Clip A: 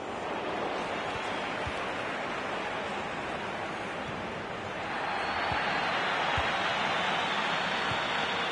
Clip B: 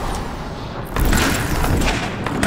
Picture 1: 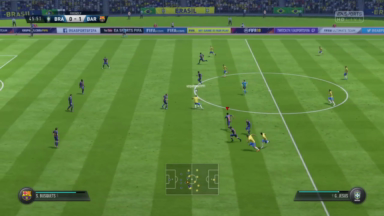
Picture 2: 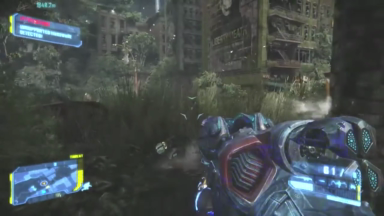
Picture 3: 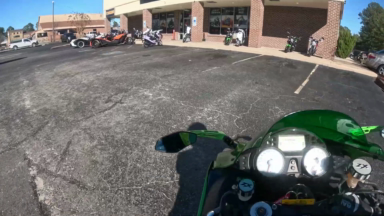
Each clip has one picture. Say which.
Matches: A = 1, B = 2